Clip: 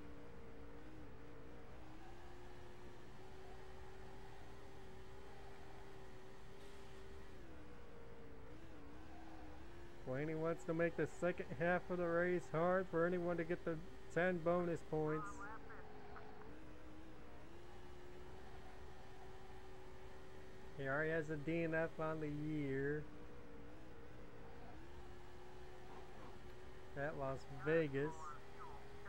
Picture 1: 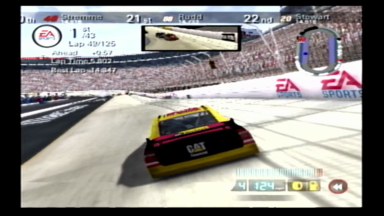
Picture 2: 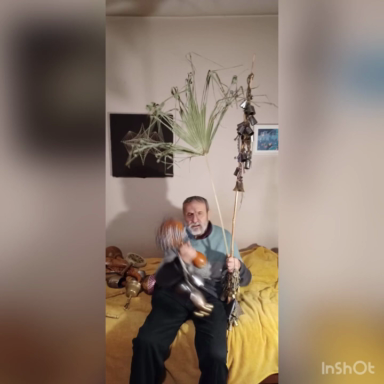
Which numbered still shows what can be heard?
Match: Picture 1